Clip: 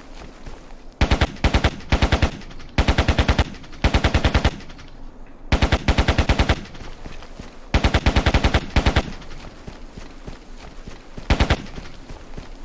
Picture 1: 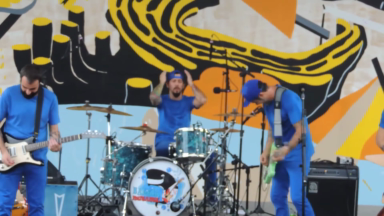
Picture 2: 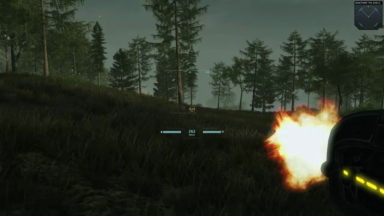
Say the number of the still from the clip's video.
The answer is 2